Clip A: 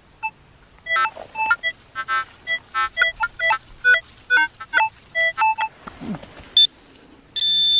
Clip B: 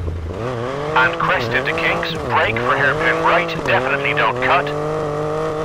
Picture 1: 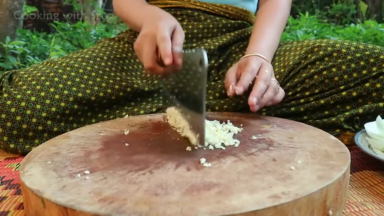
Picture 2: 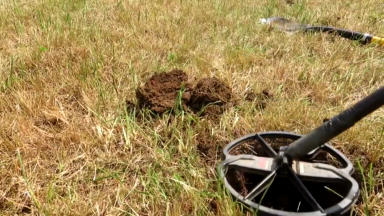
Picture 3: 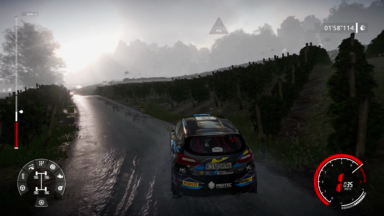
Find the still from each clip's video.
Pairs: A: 2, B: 3